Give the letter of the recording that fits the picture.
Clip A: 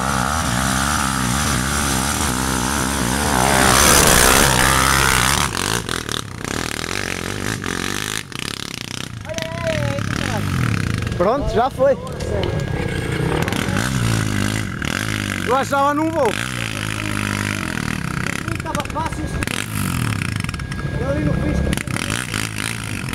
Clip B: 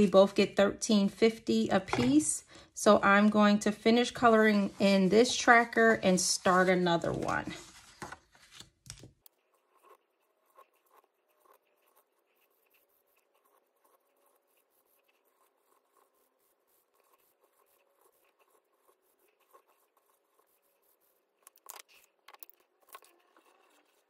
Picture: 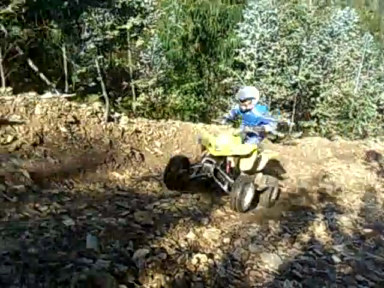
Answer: A